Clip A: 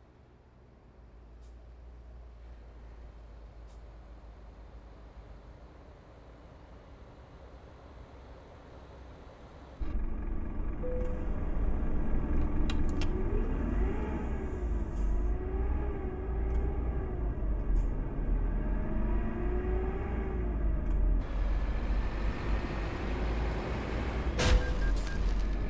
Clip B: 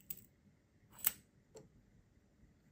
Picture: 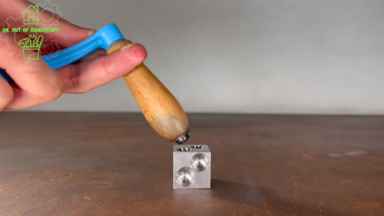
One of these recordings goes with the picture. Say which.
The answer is B